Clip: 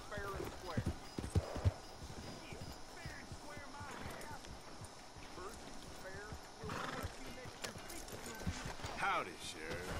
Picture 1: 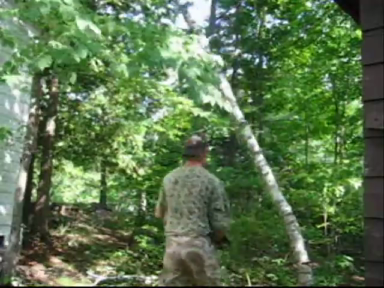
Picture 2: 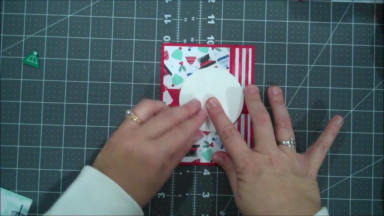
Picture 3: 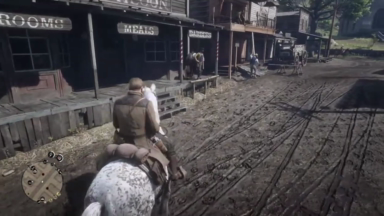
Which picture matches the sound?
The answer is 3